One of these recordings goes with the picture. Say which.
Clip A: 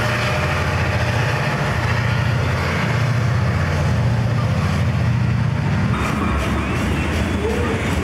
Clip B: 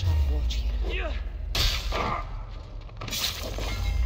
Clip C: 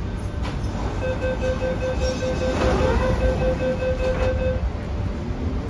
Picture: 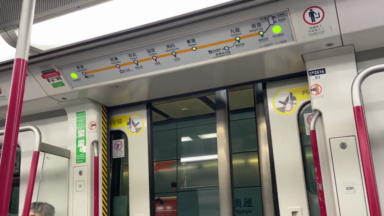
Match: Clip C